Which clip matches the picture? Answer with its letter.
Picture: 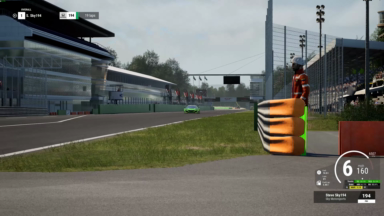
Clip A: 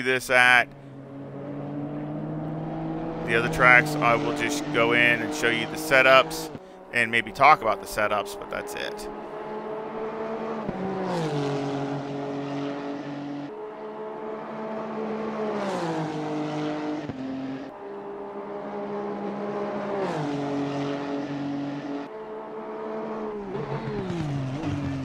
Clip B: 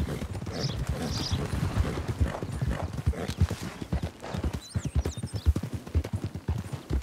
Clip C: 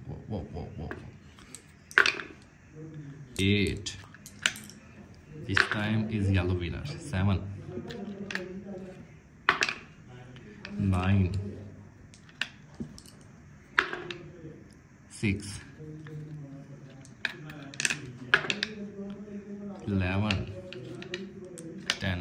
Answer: A